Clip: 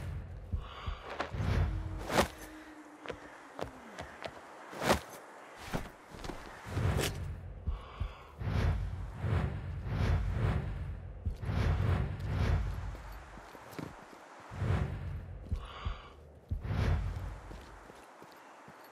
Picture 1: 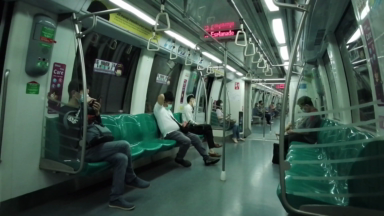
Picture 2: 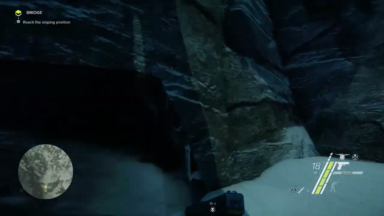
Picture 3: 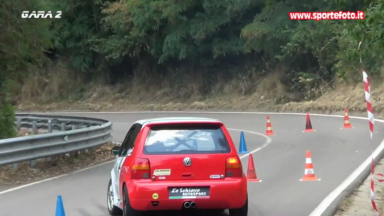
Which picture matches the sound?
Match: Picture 2